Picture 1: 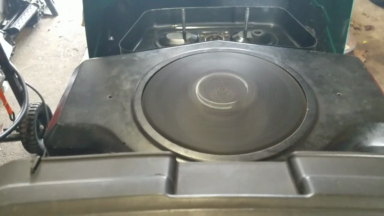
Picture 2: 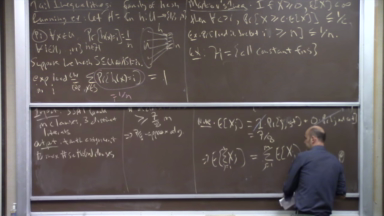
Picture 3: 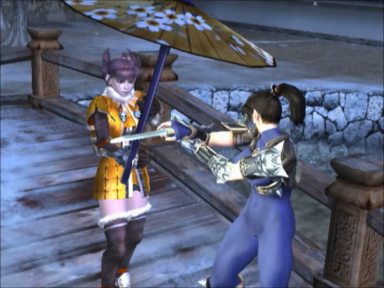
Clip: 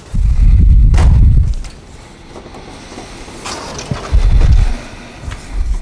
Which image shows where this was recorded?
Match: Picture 2